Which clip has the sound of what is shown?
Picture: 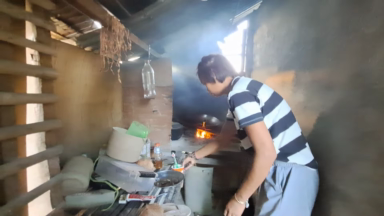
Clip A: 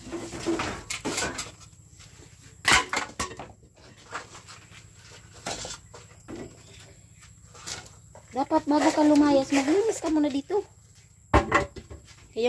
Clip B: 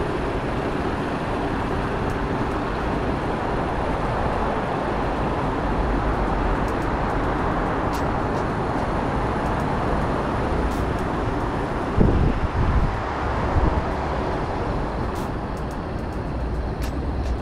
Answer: A